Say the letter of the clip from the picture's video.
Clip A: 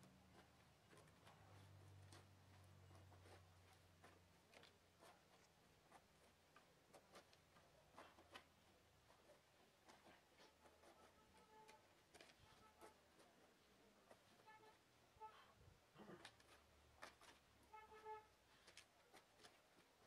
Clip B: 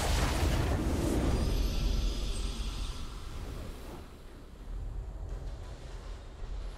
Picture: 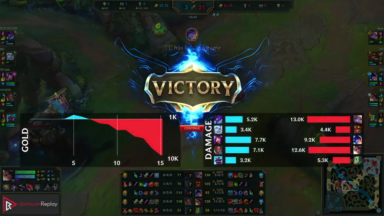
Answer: B